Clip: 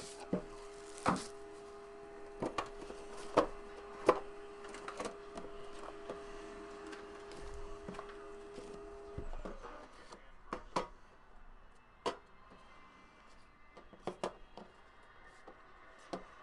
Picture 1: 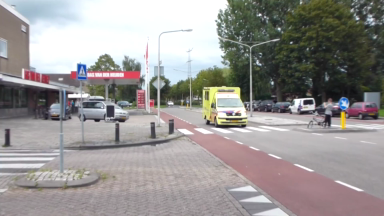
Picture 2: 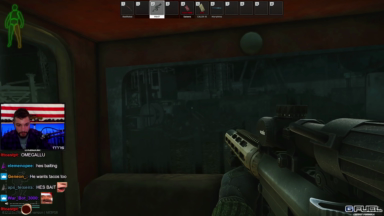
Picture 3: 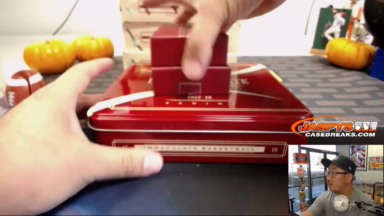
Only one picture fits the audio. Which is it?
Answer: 3